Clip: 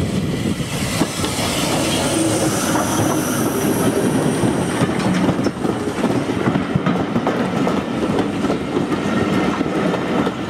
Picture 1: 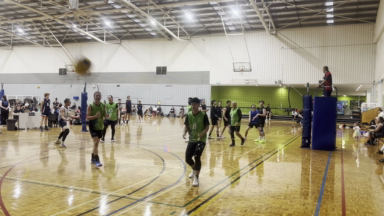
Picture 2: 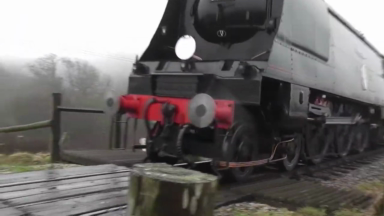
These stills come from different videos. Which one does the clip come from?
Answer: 2